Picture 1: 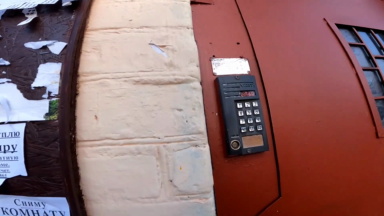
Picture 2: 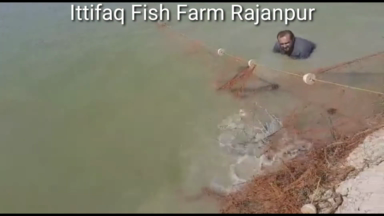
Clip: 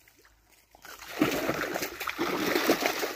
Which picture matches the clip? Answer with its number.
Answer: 2